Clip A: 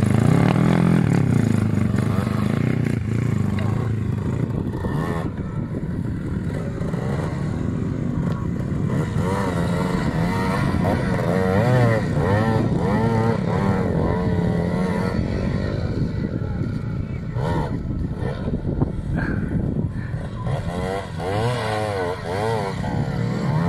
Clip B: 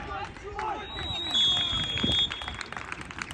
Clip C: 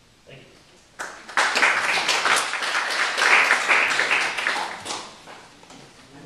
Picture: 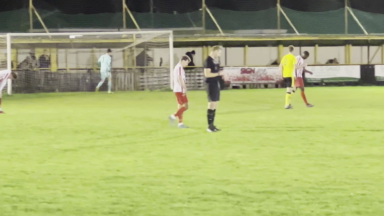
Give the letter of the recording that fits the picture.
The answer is B